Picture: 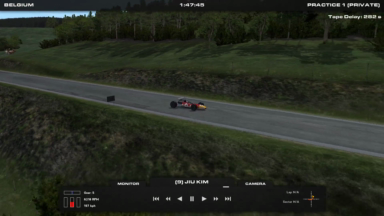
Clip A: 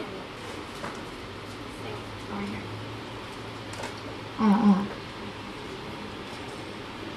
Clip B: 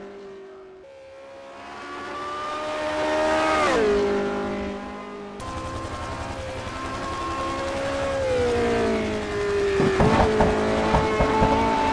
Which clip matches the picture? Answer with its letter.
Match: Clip B